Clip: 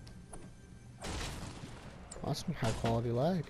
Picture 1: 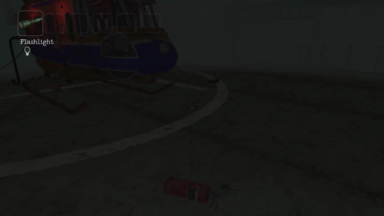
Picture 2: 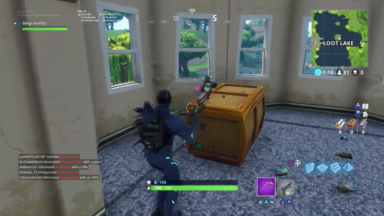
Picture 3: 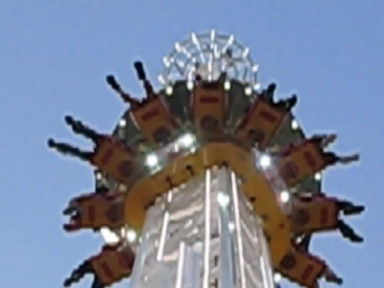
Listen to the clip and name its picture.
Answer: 2